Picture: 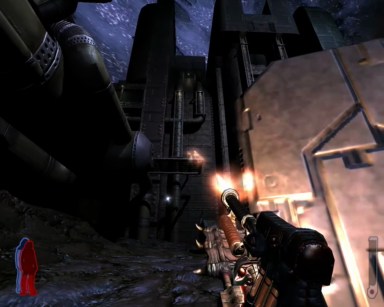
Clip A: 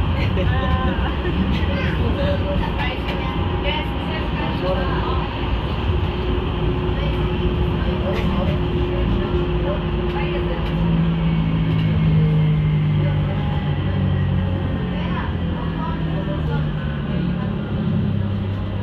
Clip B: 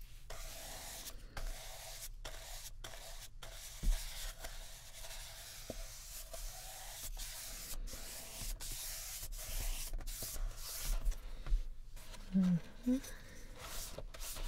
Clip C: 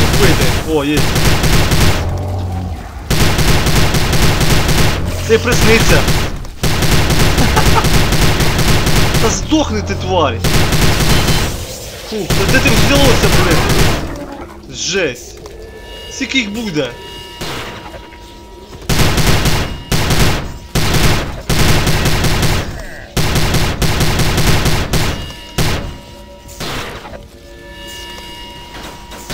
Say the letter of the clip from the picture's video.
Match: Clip C